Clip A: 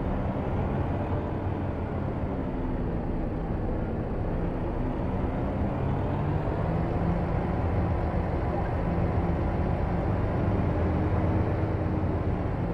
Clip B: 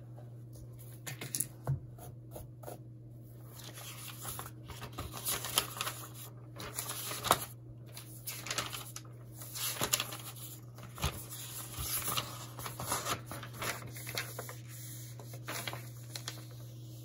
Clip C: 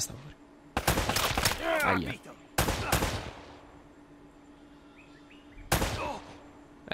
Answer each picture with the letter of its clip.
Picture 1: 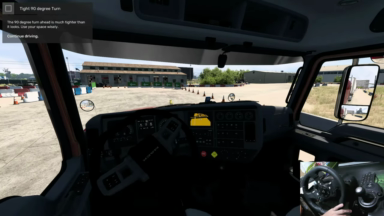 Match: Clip A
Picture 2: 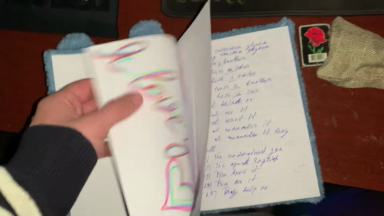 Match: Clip B